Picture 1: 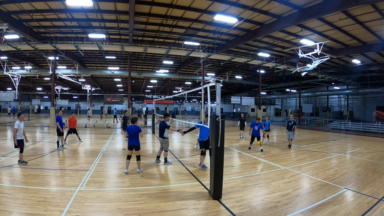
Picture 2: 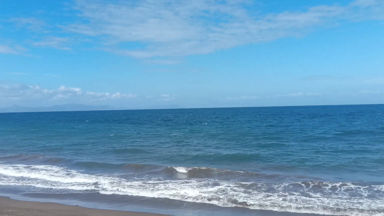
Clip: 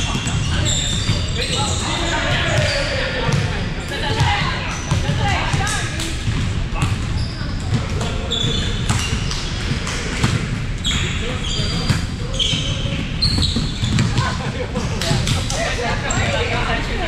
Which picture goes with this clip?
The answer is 1